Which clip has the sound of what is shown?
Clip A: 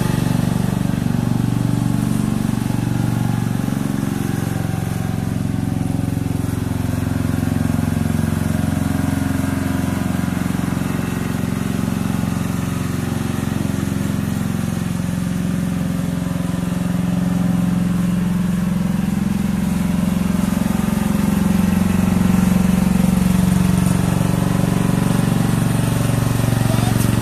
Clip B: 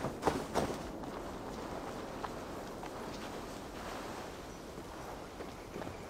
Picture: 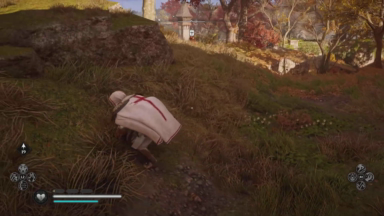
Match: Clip B